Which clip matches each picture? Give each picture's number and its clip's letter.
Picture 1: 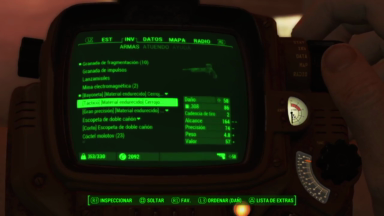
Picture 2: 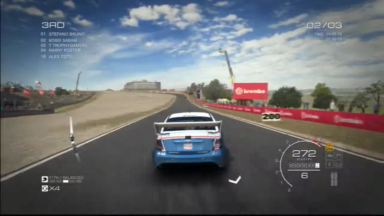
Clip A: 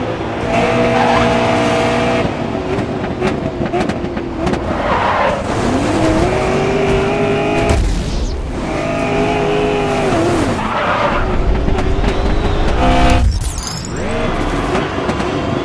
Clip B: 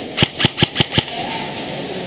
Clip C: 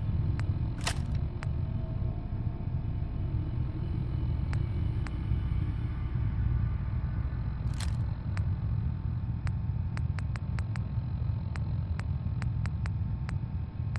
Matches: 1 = C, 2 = A